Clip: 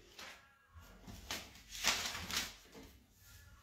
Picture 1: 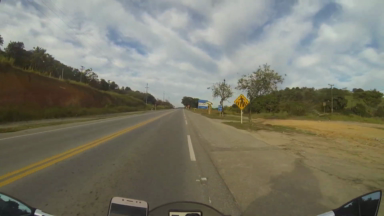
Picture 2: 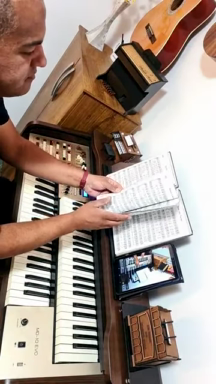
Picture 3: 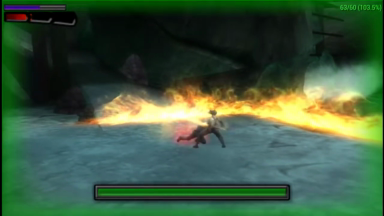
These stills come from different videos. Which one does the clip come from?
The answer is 2